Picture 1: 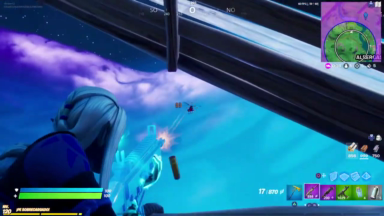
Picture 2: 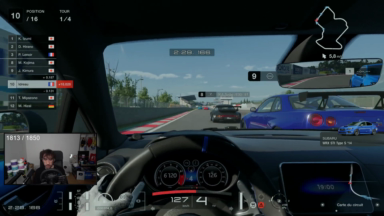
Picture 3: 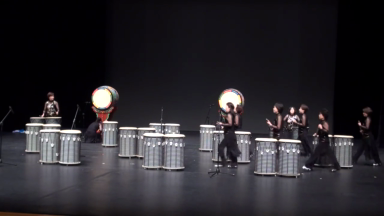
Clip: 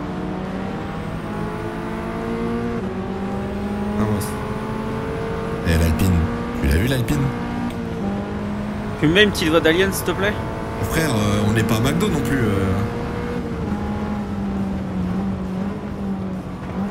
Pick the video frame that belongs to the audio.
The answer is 2